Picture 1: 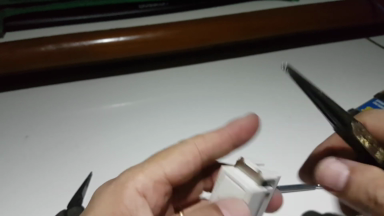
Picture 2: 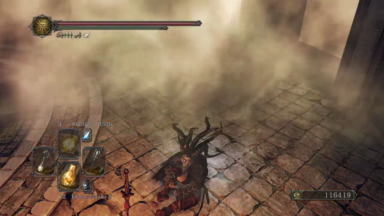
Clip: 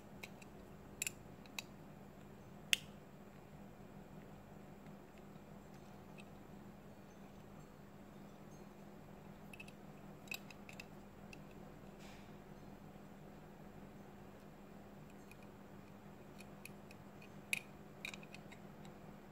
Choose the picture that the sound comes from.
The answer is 1